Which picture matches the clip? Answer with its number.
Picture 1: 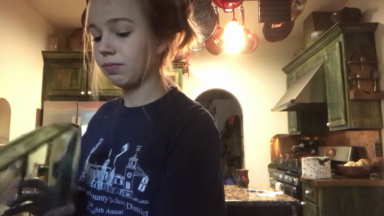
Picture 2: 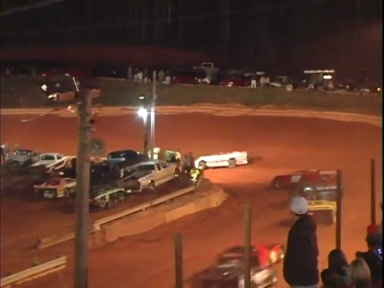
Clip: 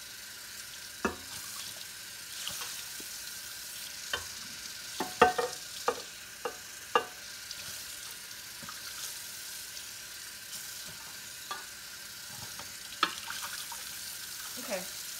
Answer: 1